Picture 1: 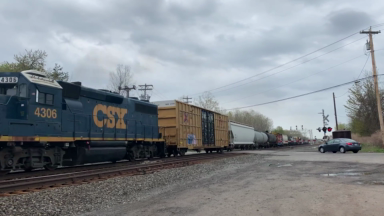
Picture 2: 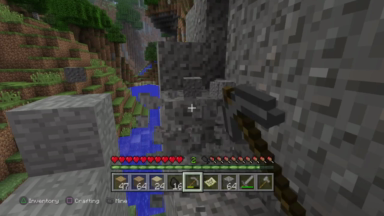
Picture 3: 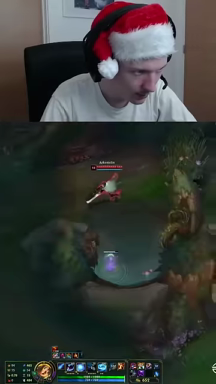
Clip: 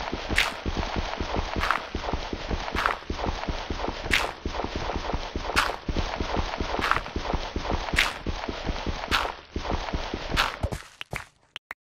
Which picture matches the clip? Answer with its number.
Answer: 2